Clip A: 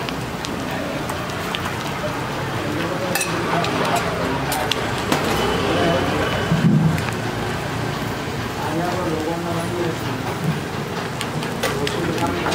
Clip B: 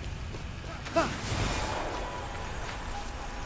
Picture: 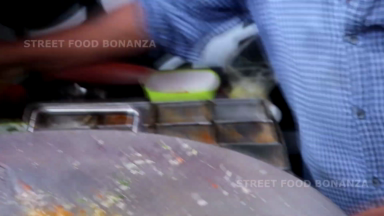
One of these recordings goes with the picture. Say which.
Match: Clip A